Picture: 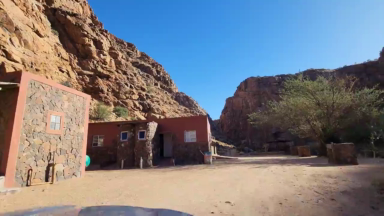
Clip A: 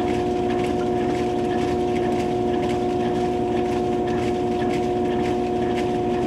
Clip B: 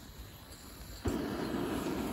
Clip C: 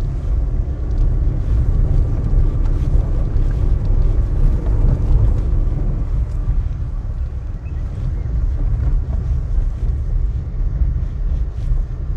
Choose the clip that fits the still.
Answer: C